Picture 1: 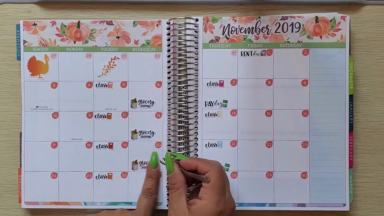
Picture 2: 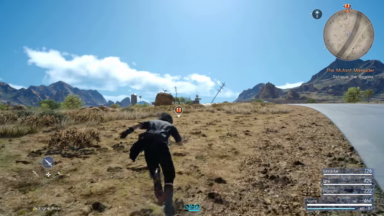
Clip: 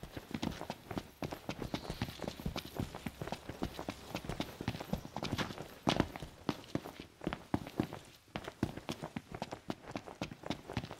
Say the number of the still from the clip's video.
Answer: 2